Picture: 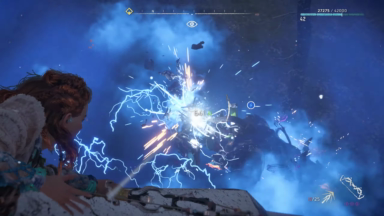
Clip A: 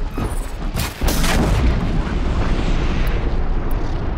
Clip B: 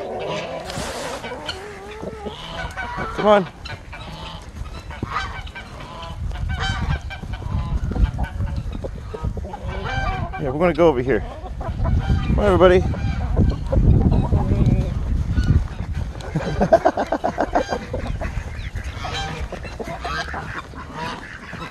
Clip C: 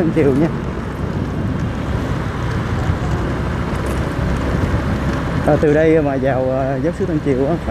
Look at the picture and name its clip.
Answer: A